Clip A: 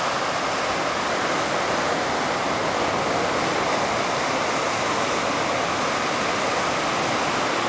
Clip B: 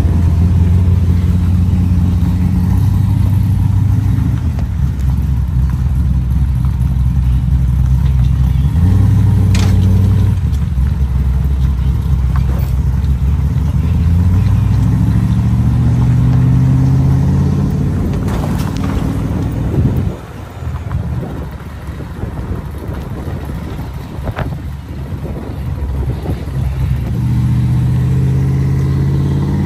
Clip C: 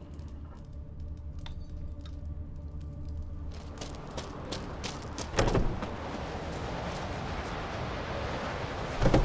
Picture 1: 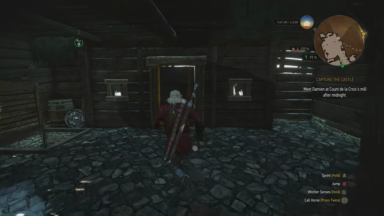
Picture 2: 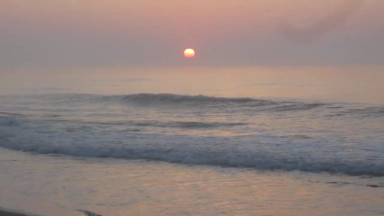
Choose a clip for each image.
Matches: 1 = C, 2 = A